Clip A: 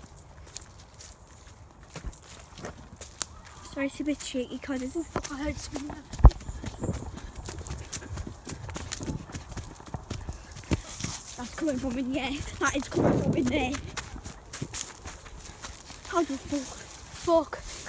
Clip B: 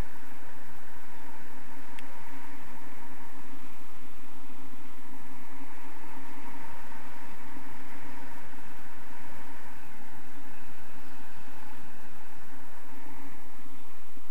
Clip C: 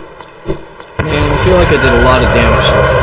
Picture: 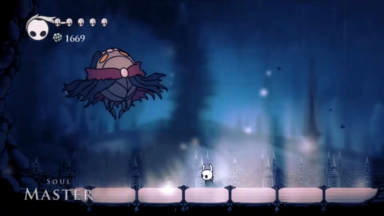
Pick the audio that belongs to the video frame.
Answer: C